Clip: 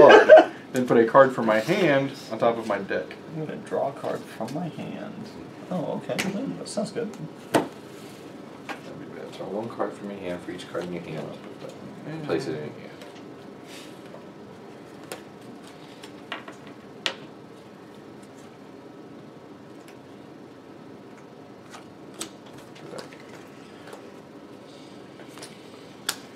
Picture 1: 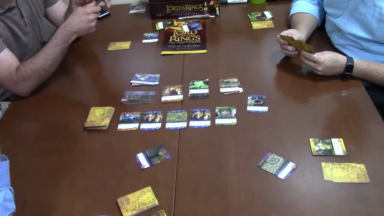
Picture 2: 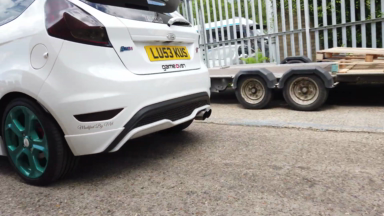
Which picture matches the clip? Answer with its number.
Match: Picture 1